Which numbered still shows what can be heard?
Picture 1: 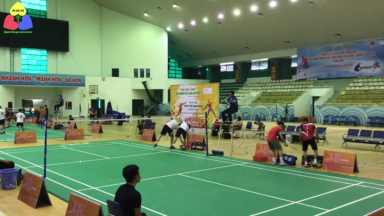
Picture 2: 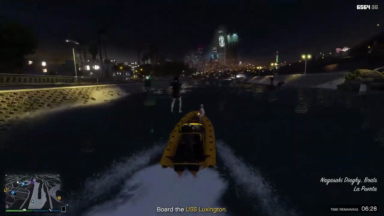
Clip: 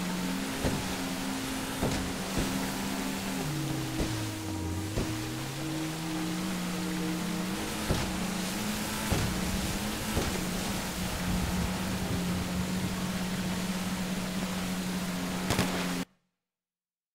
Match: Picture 2